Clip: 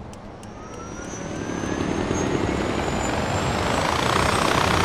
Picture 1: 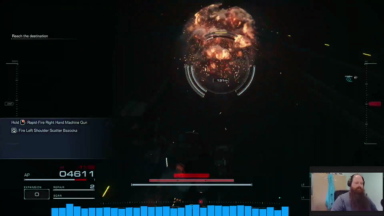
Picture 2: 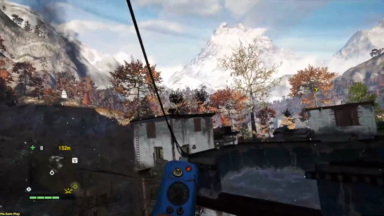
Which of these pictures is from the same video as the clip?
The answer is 2